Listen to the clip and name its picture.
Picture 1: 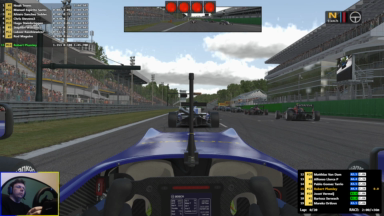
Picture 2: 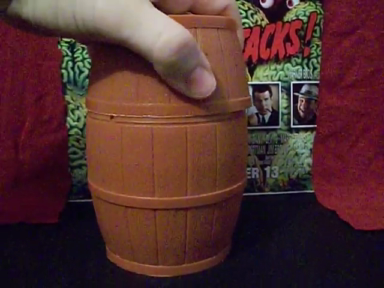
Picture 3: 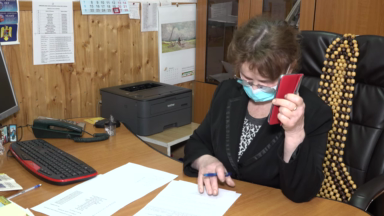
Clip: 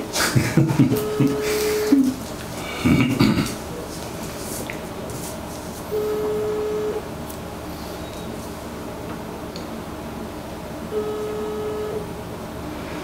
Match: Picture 3